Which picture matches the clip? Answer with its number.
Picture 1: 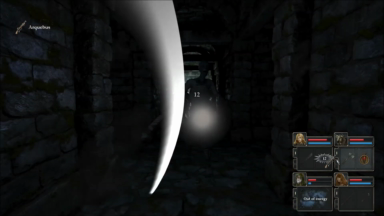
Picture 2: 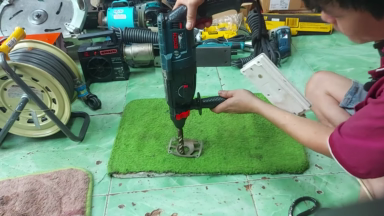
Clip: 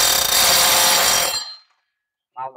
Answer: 2